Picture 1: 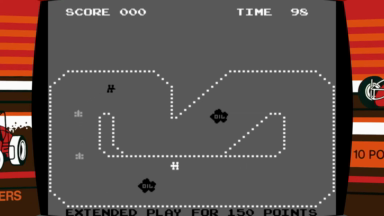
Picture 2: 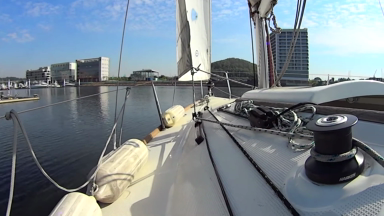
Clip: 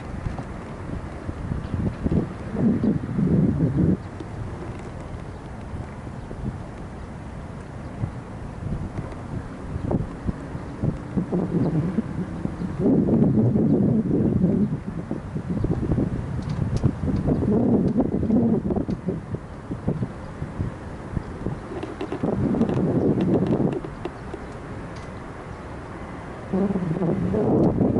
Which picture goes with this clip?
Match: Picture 2